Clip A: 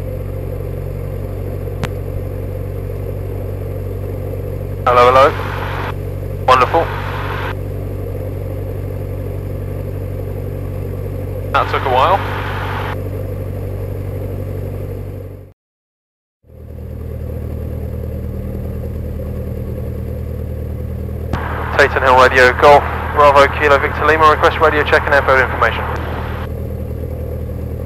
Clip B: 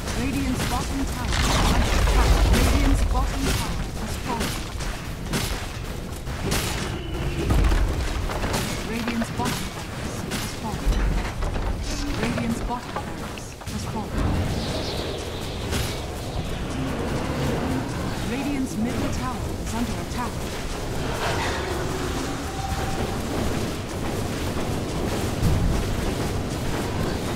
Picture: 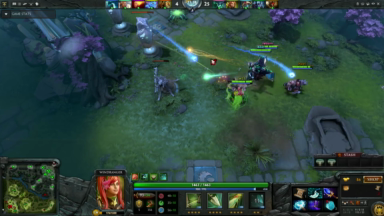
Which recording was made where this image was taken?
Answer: B